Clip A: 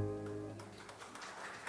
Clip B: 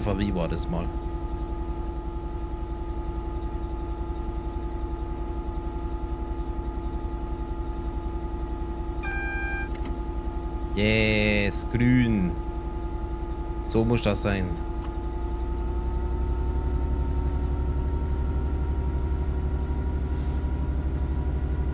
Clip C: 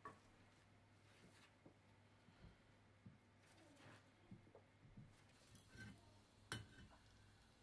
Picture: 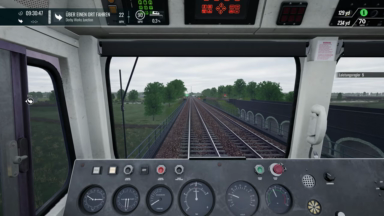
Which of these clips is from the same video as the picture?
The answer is B